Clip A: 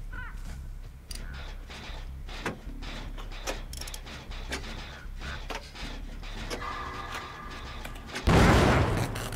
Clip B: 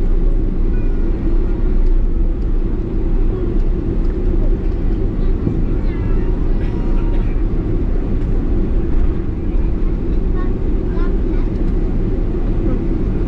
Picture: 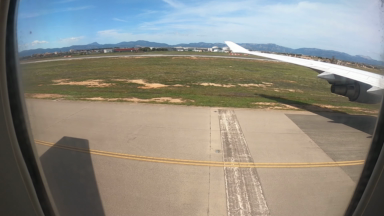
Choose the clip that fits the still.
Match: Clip B